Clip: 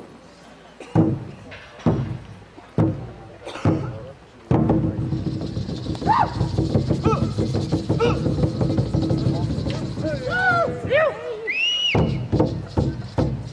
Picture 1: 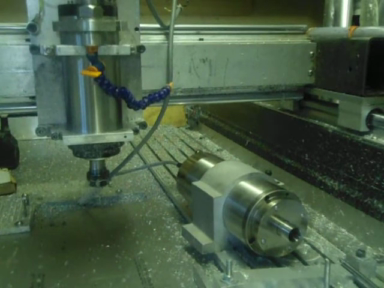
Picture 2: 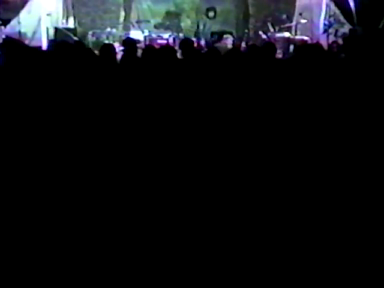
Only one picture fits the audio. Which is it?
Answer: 2